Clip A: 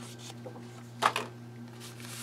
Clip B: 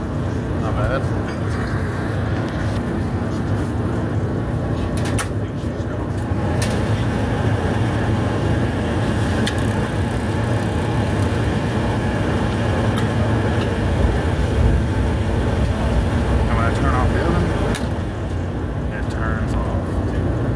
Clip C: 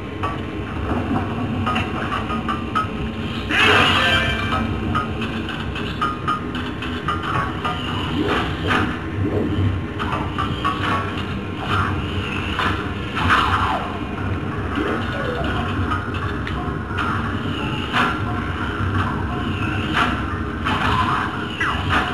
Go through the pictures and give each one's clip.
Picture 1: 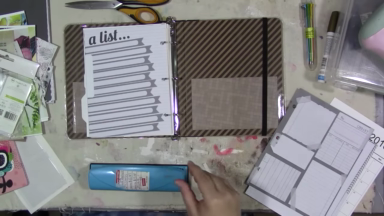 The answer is A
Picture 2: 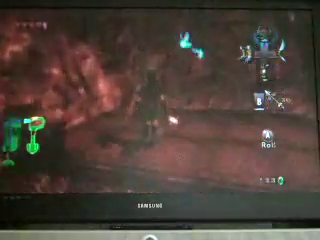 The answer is C